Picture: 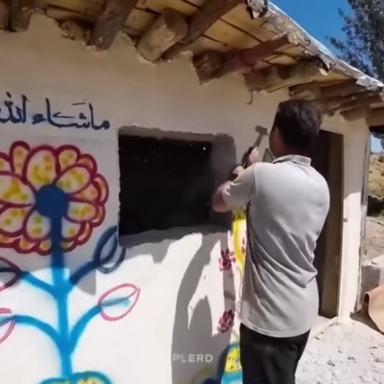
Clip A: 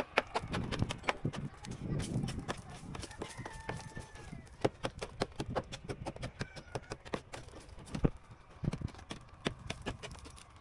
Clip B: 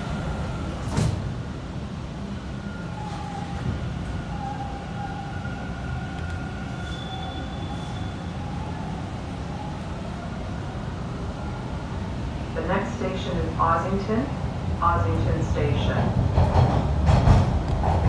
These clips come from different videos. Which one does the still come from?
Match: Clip A